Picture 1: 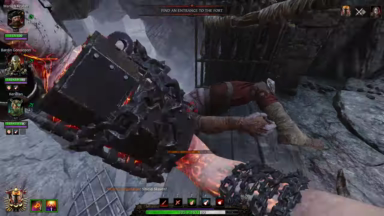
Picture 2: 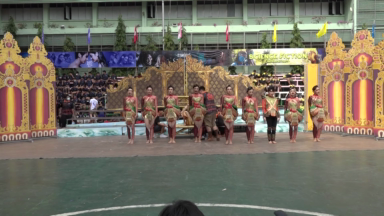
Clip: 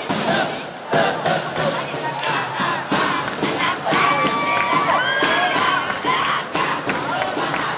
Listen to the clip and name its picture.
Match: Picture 2